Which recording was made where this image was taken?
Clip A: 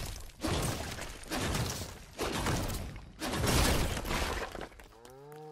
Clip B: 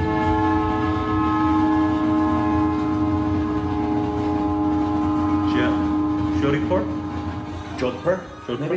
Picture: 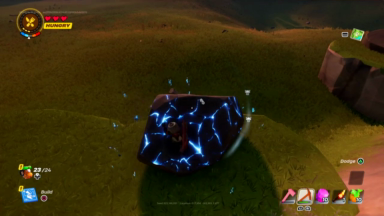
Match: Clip A